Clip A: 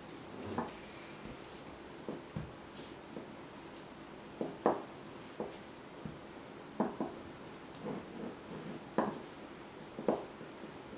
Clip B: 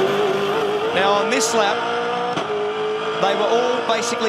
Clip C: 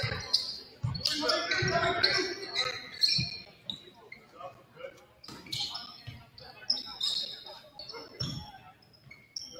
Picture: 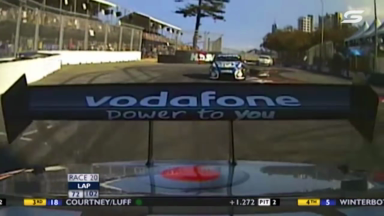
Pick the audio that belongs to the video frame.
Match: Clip B